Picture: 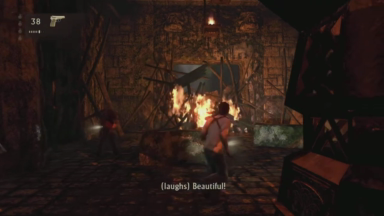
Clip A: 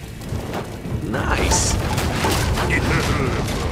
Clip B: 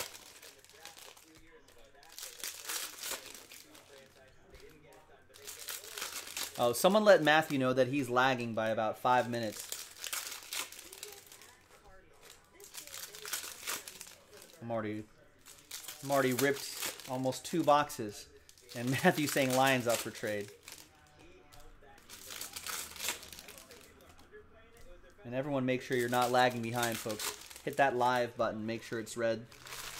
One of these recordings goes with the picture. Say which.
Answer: A